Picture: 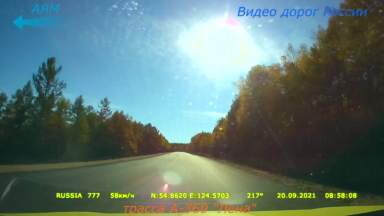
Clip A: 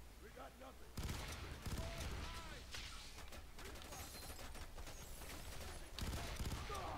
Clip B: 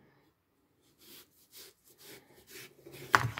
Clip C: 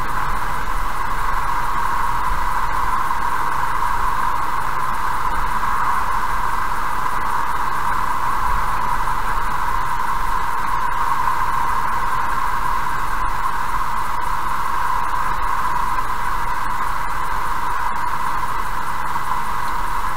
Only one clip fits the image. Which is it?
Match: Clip C